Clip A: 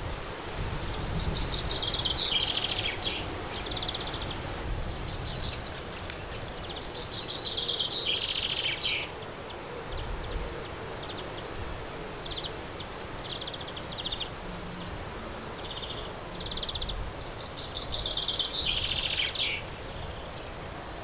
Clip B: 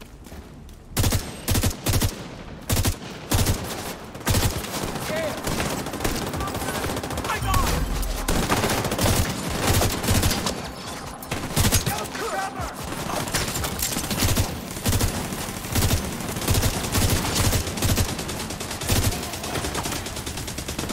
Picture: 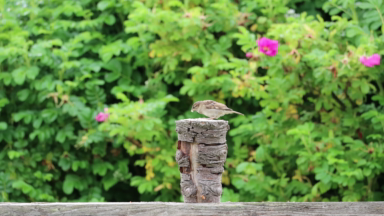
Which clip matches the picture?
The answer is A